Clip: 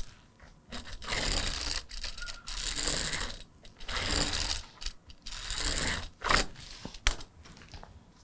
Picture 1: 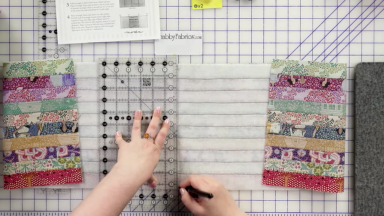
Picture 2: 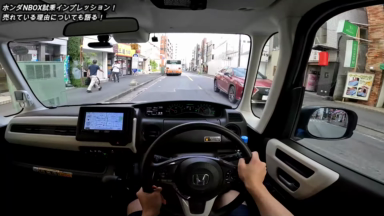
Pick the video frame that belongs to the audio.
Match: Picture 1